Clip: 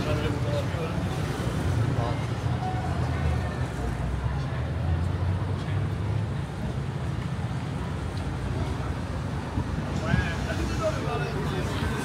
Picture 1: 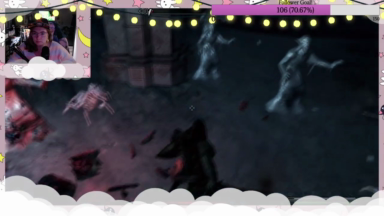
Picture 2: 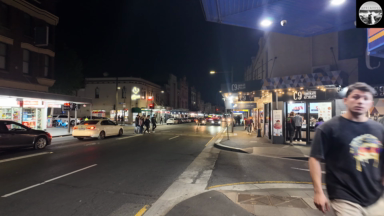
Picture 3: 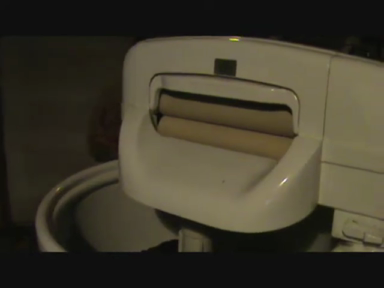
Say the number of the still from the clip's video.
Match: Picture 2